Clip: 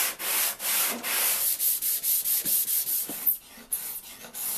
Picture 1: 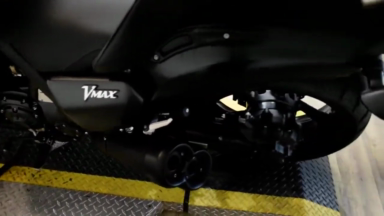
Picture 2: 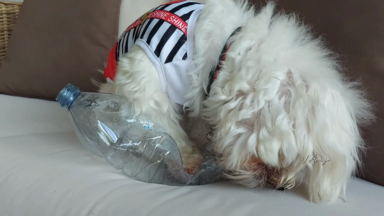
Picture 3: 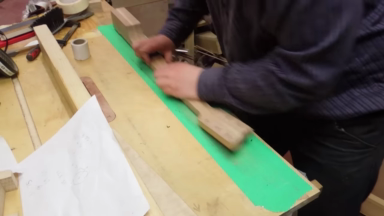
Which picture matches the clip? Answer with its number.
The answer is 3